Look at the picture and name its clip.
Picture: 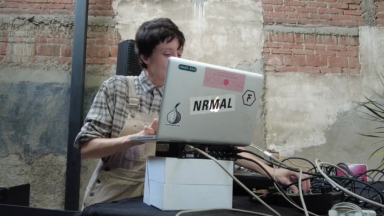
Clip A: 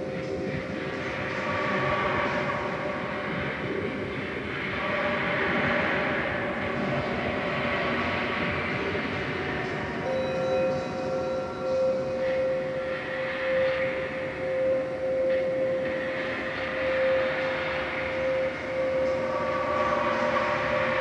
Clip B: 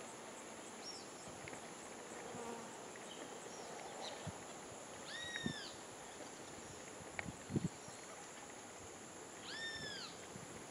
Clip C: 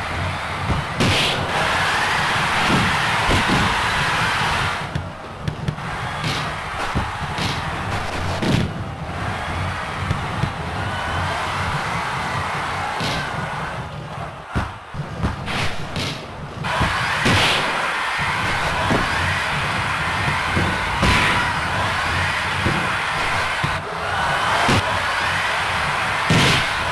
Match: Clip A